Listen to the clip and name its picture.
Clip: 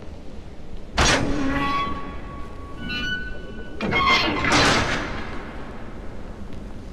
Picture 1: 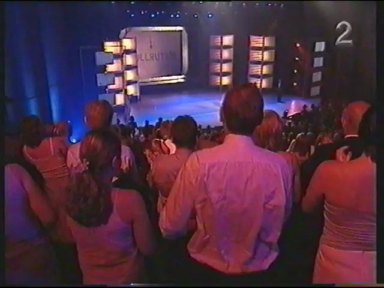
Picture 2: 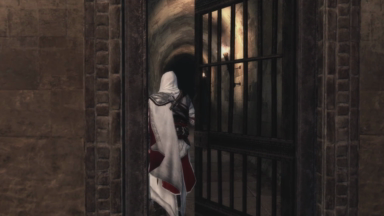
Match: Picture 2